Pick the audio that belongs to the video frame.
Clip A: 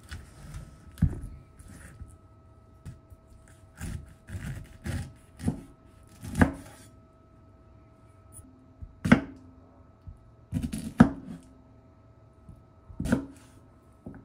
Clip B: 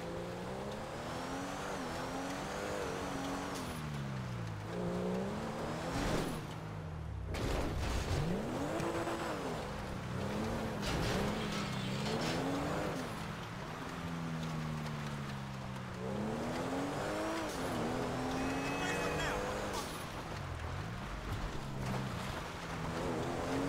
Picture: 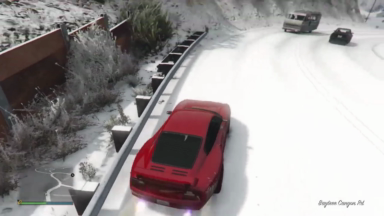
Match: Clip B